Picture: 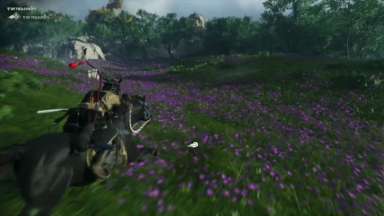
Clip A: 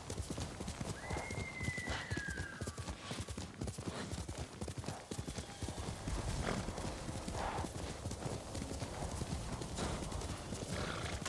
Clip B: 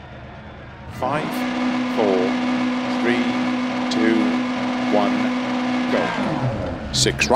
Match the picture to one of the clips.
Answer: A